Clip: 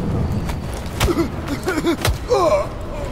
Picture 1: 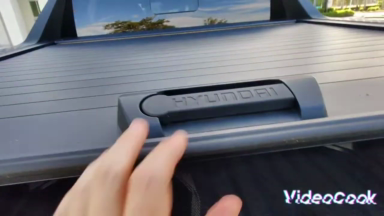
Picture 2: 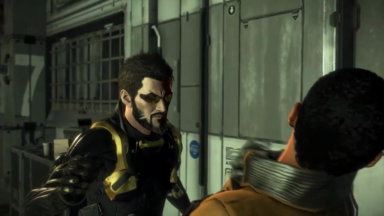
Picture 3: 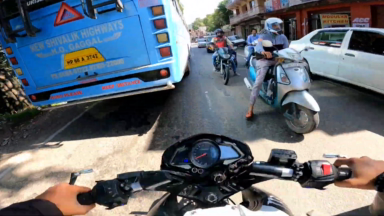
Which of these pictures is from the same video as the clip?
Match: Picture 2